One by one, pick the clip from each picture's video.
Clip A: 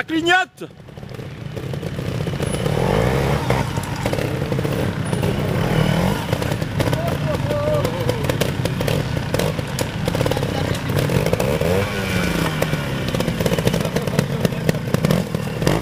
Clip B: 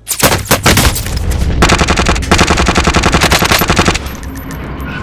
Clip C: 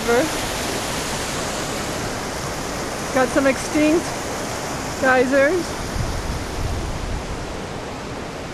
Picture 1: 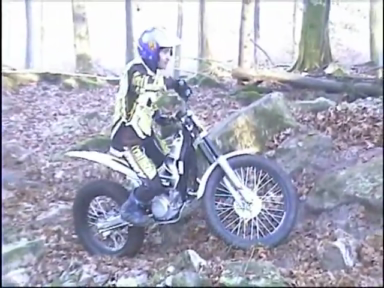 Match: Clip A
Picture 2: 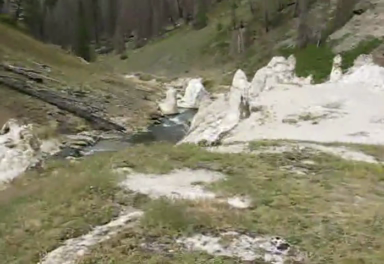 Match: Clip C